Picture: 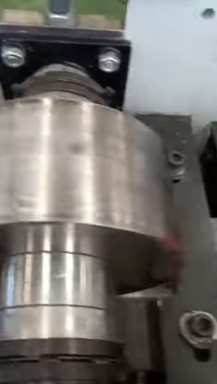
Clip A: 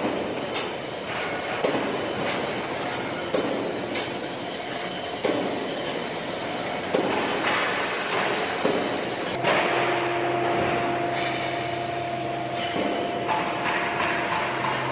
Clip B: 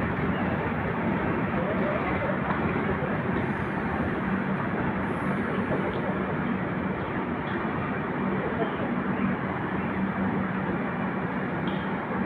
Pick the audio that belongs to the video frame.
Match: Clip A